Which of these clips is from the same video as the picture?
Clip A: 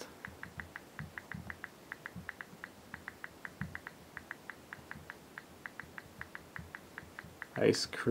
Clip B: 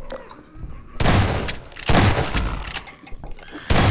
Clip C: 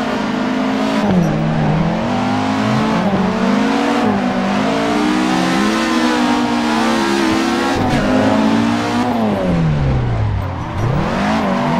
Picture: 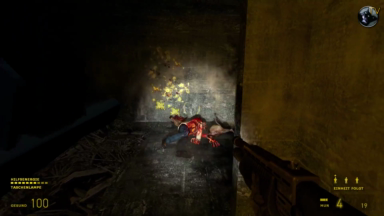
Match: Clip B